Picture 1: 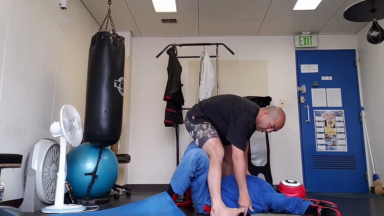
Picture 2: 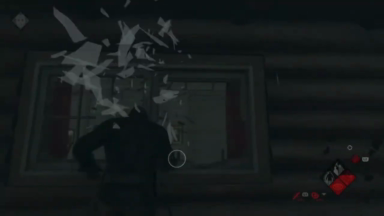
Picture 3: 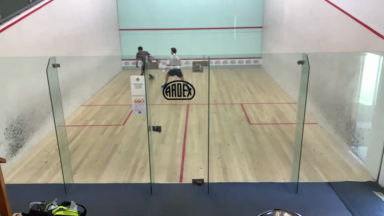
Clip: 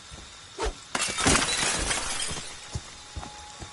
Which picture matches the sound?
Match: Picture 2